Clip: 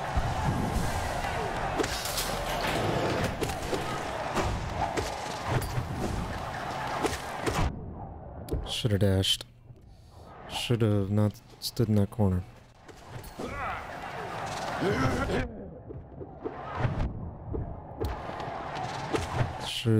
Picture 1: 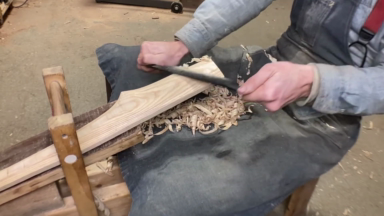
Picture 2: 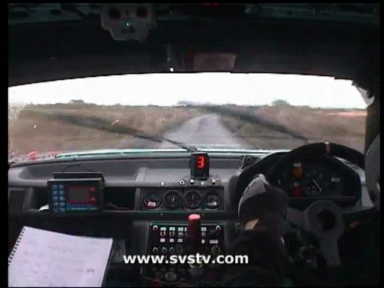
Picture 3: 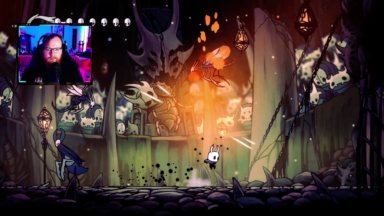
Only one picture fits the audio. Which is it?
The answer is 3